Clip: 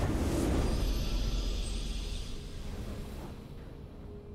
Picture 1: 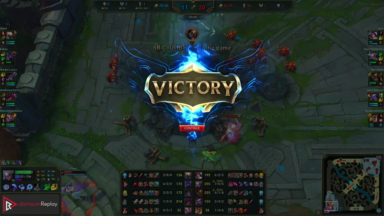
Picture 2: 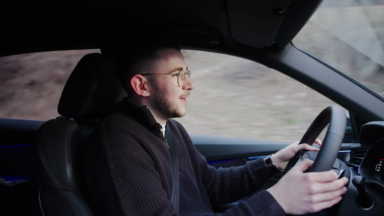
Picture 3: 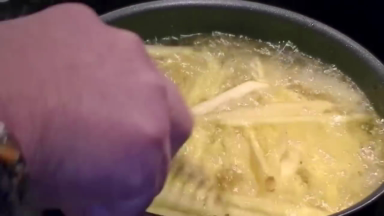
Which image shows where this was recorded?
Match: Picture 1